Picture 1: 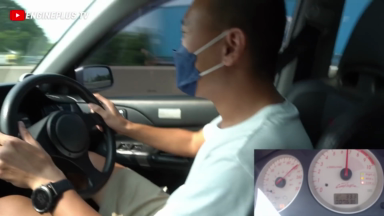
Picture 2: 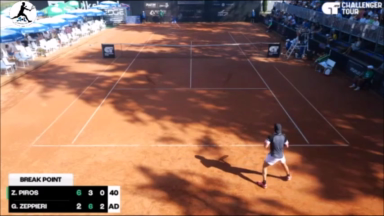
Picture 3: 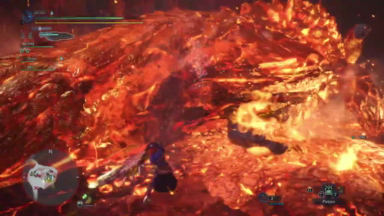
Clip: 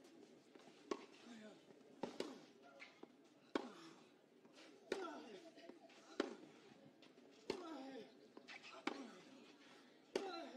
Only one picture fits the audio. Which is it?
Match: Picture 2